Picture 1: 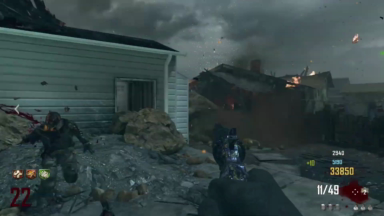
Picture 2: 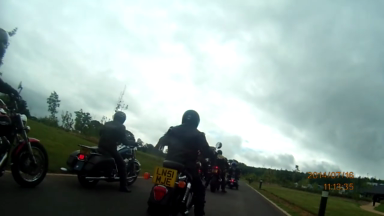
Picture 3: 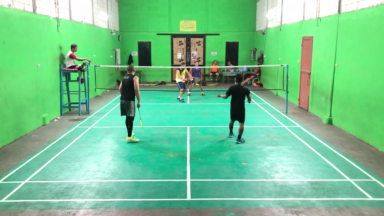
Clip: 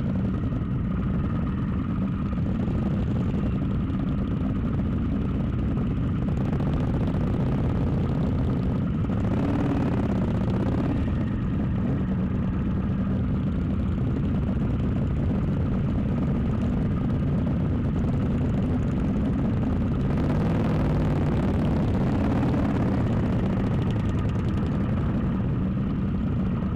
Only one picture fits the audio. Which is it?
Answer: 2